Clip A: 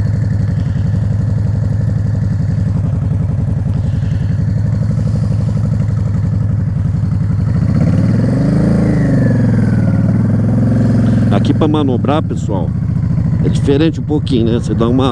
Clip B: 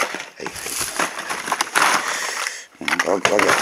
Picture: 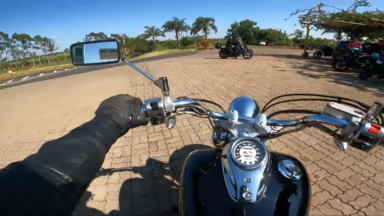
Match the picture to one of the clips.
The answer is A